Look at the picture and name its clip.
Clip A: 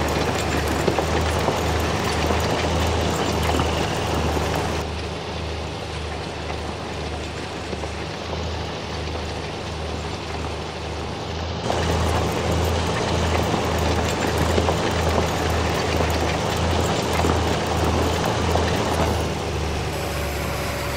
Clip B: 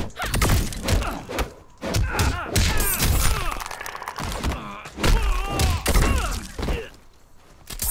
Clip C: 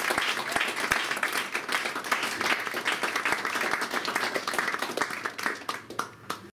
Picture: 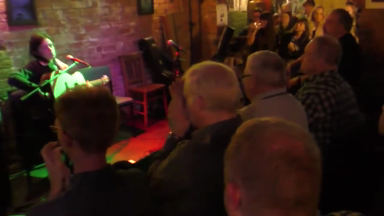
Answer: C